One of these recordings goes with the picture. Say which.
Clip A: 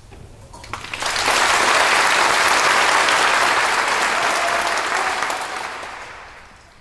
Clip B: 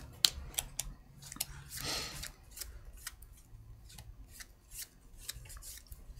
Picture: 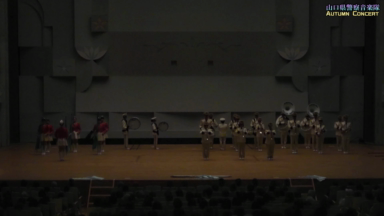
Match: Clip A